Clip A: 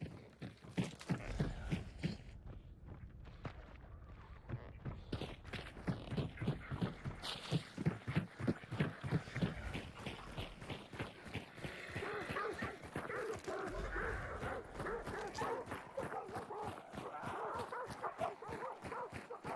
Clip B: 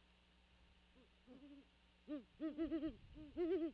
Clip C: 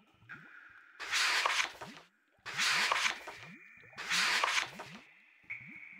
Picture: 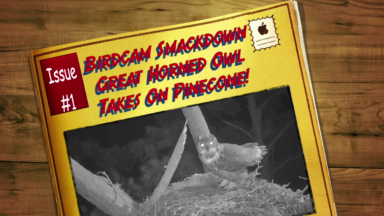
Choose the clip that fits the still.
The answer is B